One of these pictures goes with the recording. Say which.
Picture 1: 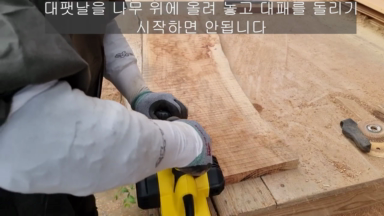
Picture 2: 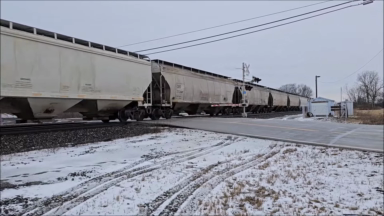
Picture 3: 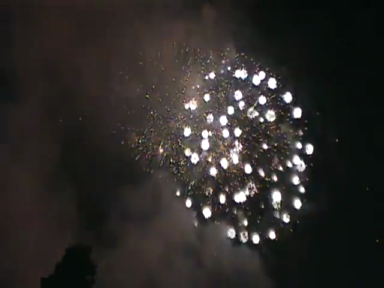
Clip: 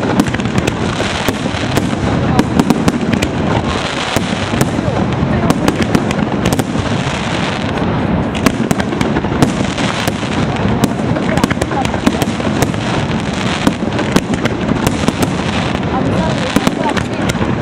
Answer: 3